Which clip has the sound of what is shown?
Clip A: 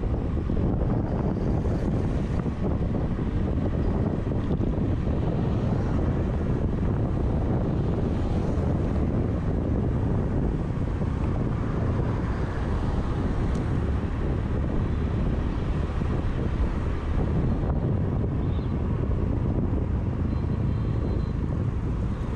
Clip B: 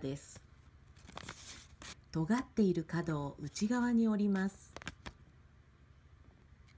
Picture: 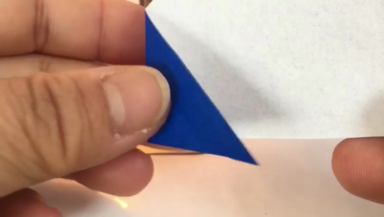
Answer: B